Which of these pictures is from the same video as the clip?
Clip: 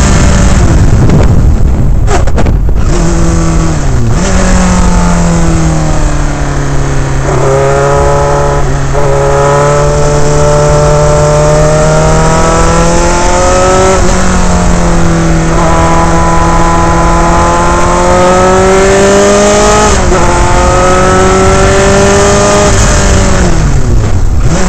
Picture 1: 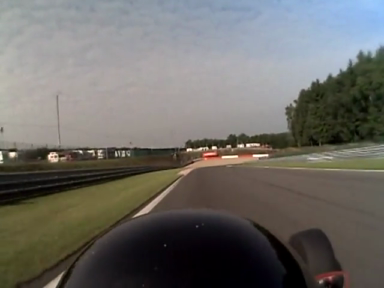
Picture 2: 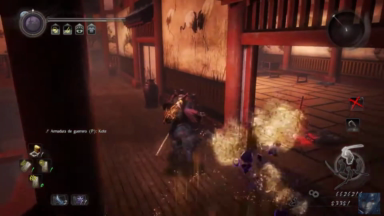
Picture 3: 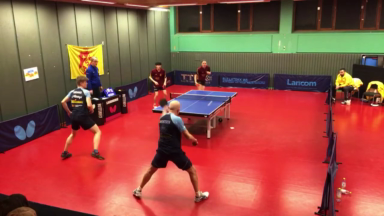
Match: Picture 1